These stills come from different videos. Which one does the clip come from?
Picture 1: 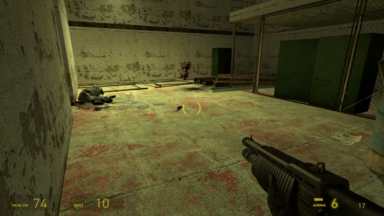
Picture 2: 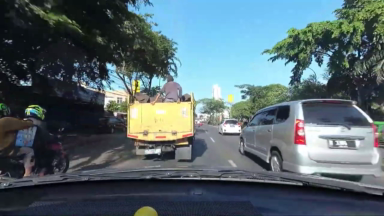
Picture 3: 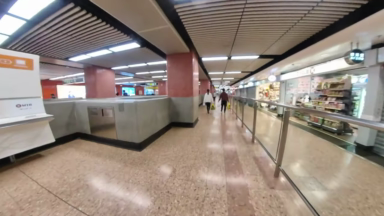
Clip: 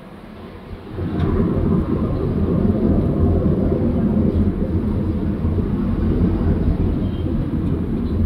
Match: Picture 2